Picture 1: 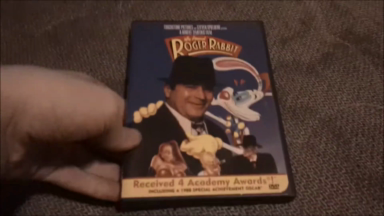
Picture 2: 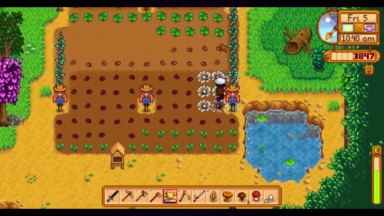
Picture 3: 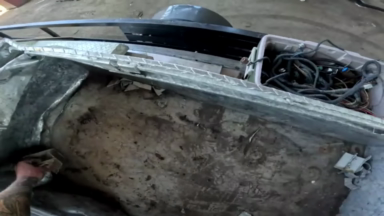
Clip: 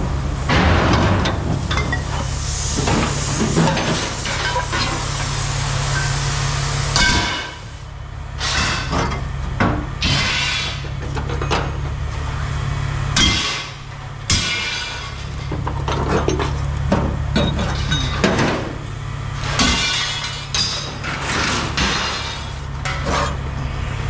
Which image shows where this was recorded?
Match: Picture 3